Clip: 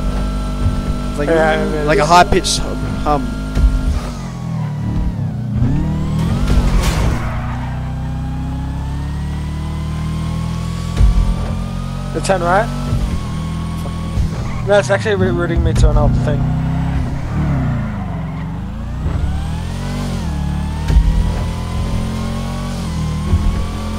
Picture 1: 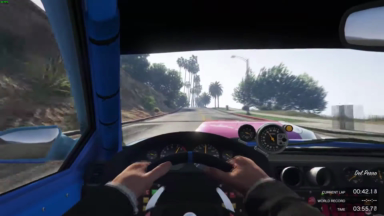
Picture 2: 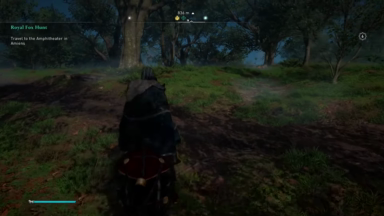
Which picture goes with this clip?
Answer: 1